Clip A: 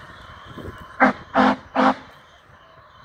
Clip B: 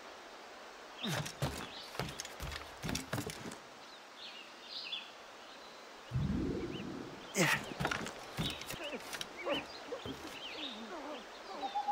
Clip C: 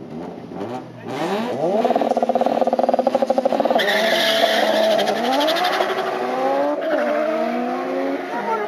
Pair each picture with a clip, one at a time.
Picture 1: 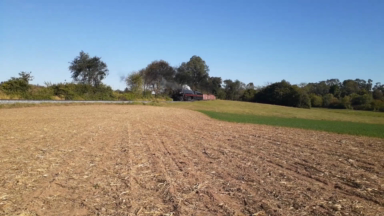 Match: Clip A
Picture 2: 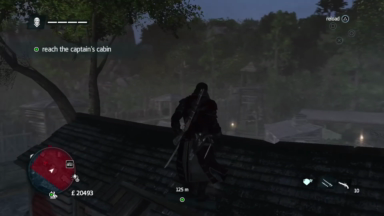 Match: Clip B